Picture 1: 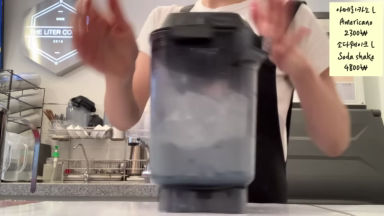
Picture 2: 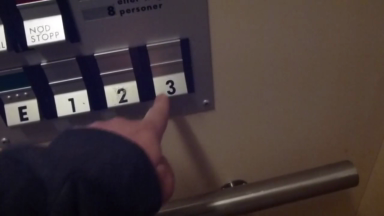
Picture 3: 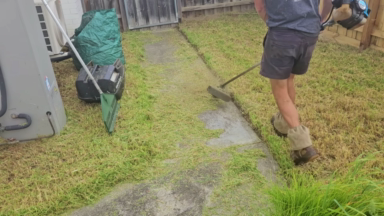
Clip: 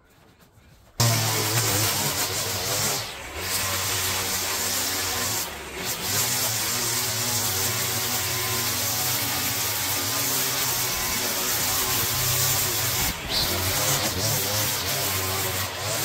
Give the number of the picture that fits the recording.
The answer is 3